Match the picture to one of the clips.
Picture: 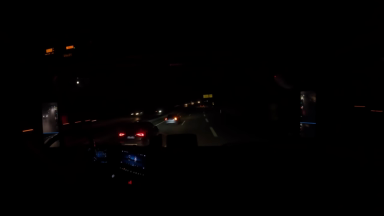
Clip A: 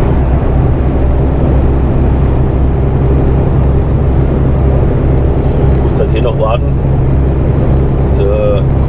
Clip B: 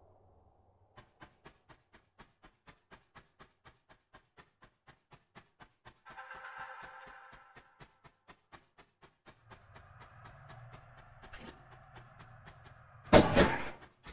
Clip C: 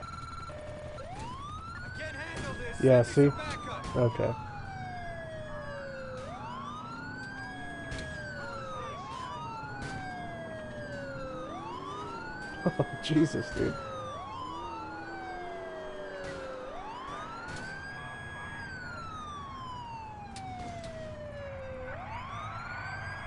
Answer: A